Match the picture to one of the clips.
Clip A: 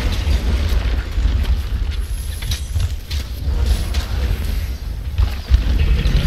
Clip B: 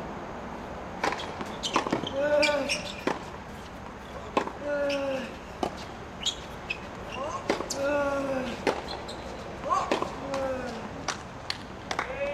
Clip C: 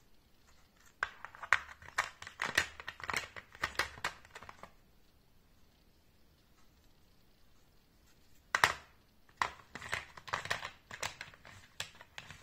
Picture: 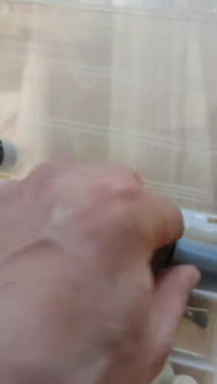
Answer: C